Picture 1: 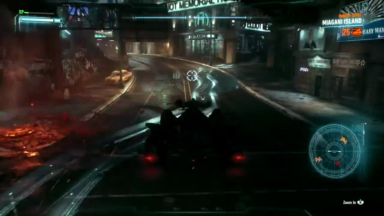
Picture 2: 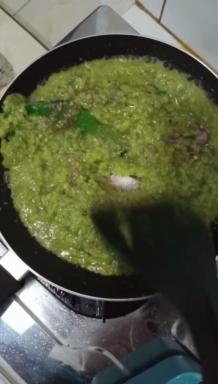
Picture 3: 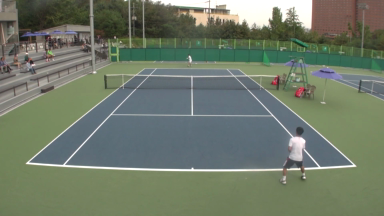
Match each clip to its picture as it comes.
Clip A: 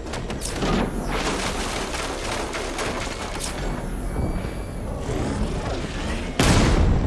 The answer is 1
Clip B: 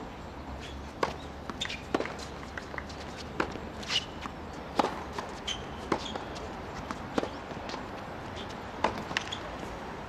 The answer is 3